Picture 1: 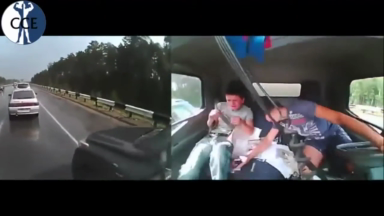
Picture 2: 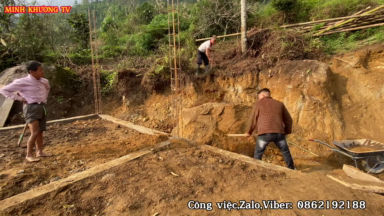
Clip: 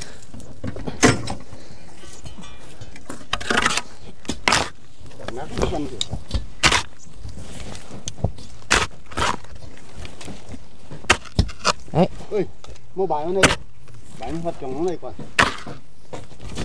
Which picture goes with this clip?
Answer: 2